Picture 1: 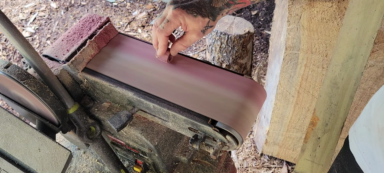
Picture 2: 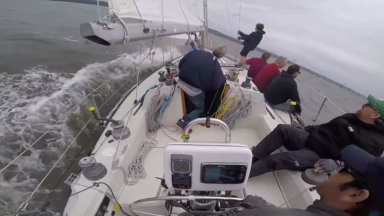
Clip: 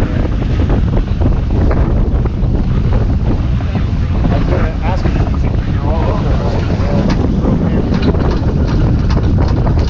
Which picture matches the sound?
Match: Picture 2